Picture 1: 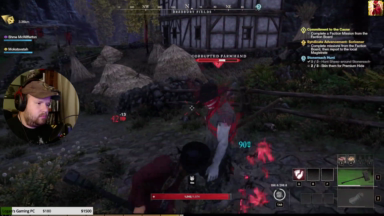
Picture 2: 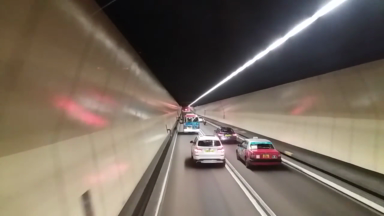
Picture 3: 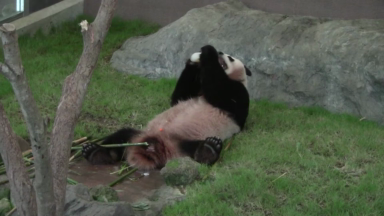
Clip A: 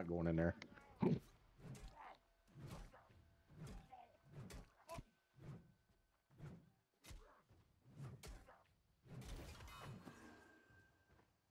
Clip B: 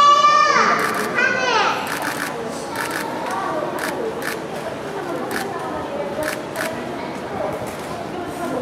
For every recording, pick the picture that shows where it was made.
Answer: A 1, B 3